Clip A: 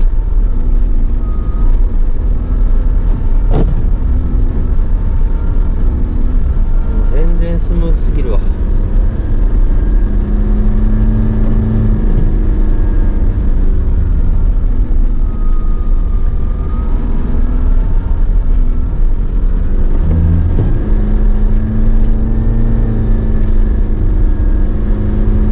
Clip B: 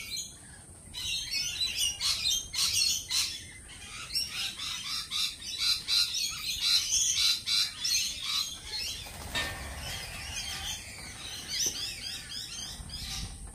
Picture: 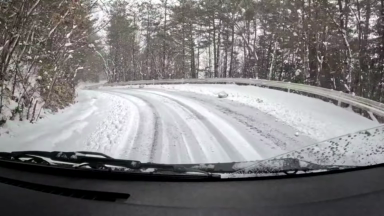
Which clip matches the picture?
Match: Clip A